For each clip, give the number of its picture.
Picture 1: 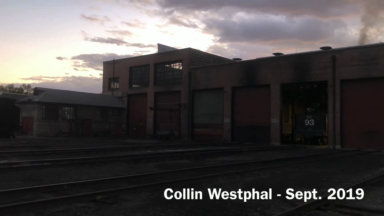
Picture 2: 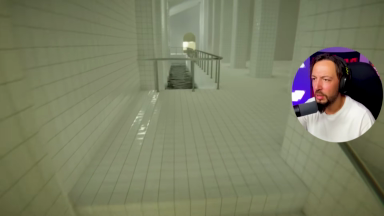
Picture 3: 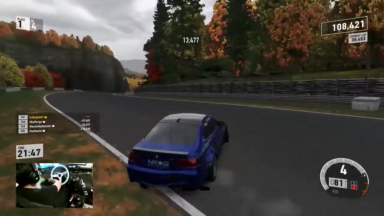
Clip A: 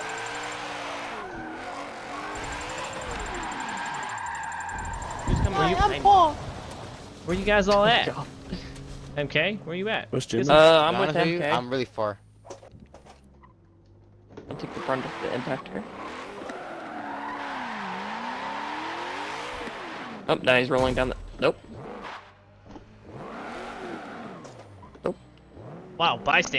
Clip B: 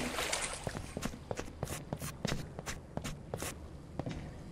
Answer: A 3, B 2